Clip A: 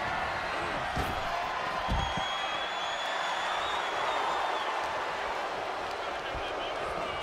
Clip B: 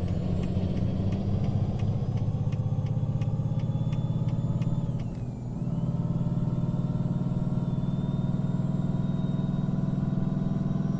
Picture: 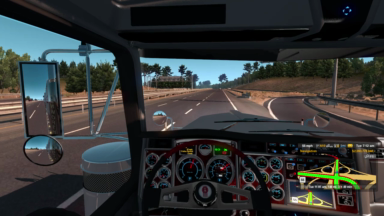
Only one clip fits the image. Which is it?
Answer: B